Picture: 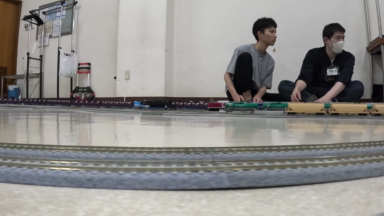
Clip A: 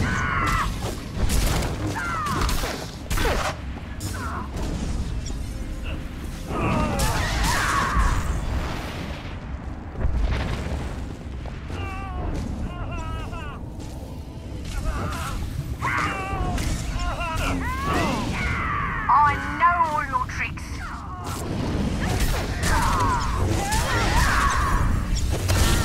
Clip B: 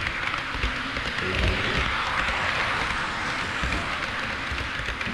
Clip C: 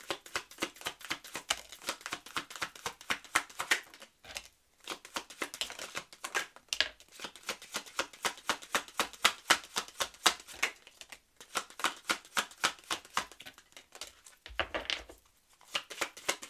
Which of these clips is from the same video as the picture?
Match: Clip B